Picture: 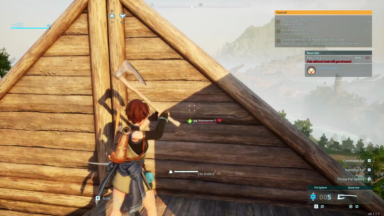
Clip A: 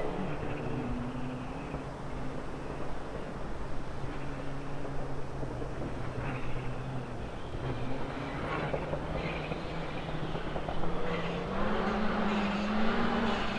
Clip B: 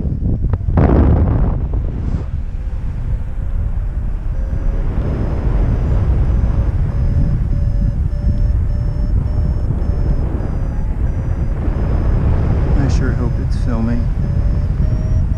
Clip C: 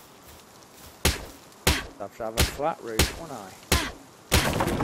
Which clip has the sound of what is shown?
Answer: C